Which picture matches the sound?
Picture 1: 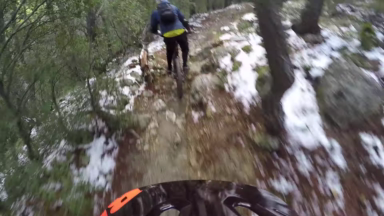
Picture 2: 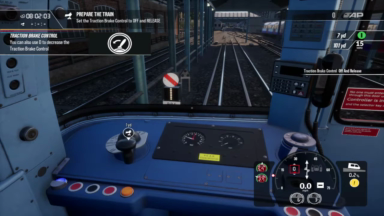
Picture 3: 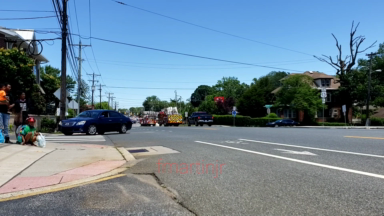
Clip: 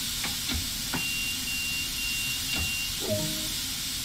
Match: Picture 2